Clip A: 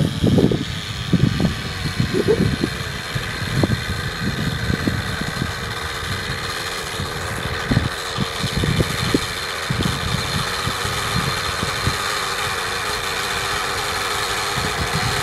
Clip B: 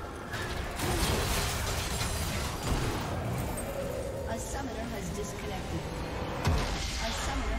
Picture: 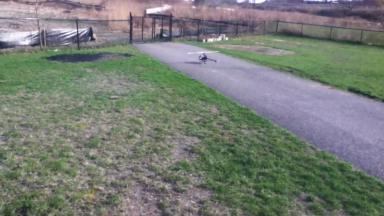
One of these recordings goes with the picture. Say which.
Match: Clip A